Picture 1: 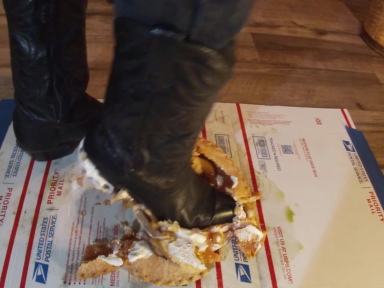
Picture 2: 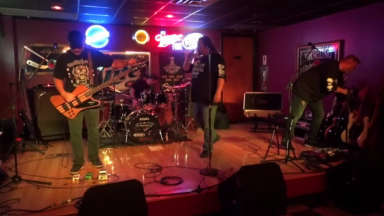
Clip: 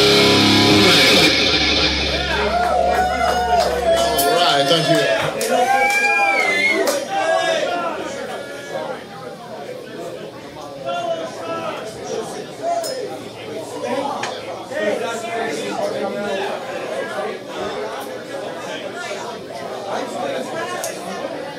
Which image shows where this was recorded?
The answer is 2